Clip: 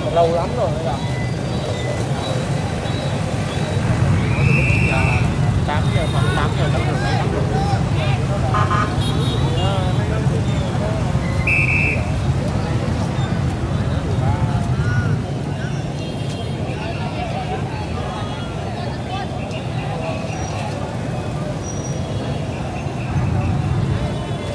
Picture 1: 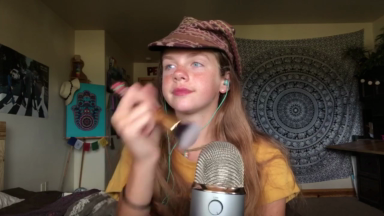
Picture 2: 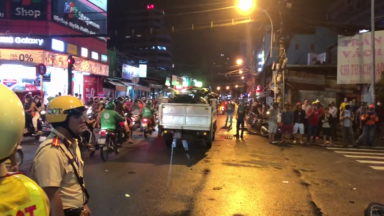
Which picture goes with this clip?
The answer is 2